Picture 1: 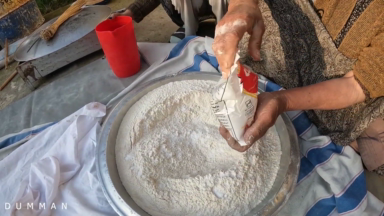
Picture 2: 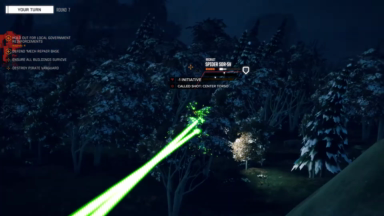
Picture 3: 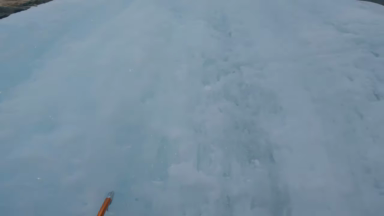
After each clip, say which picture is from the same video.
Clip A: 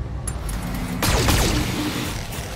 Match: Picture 2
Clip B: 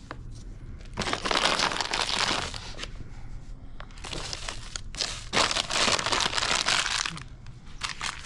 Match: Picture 1